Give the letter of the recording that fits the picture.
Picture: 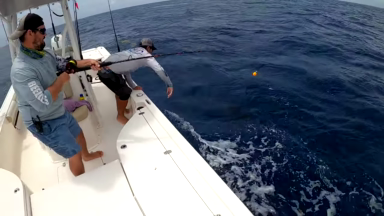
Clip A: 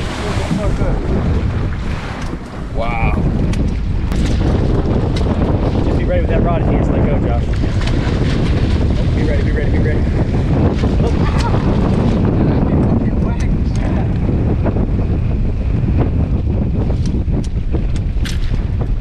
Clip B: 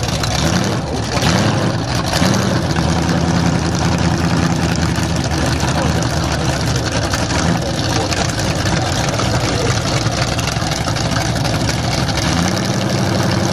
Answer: A